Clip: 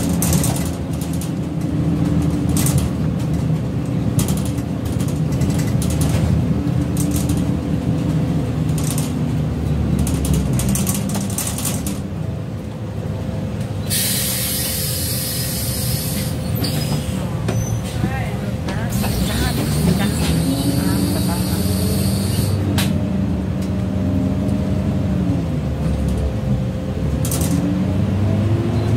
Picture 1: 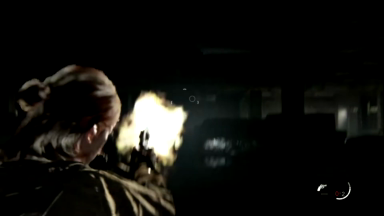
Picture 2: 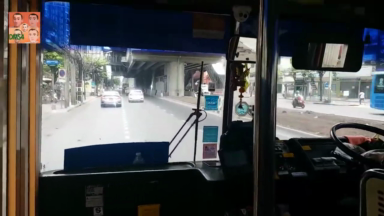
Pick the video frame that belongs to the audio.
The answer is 2